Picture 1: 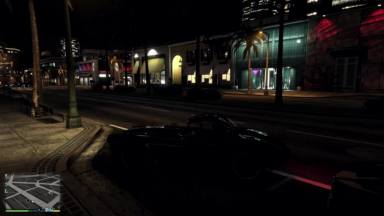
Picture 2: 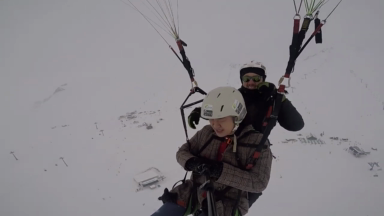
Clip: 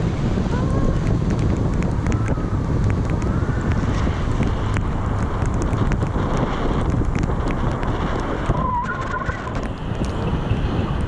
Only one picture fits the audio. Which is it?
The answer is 2